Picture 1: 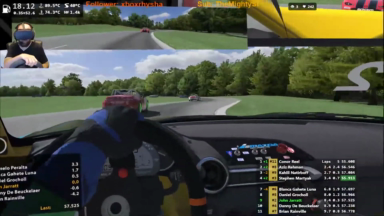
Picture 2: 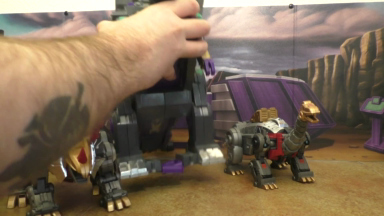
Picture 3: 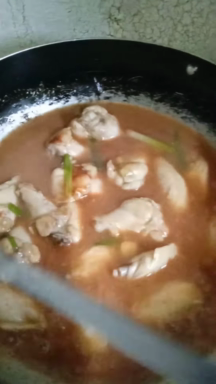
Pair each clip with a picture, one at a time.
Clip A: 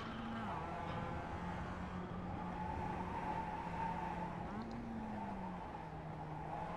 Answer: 1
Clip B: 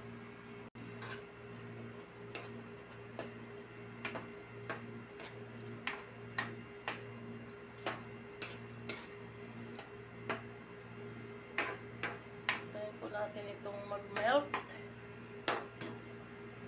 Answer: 3